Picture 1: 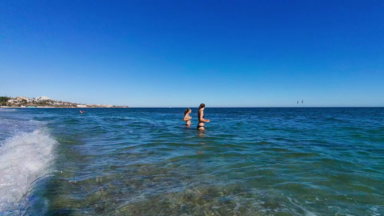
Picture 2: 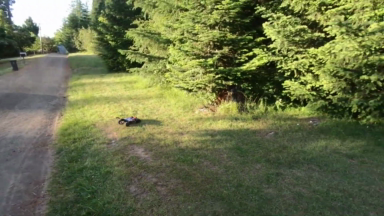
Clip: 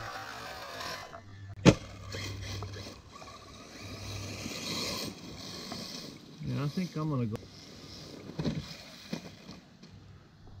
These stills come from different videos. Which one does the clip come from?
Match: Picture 2